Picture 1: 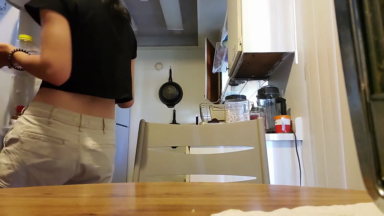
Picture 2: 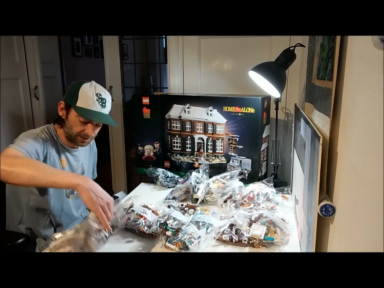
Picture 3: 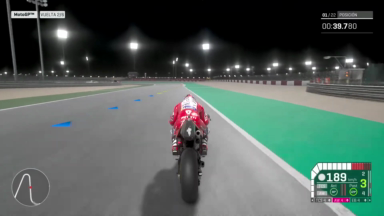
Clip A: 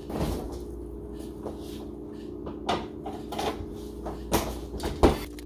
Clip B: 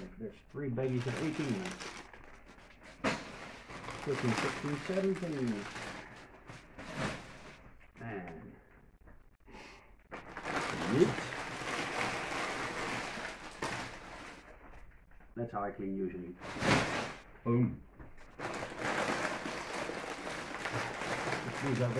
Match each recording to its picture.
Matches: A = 1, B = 2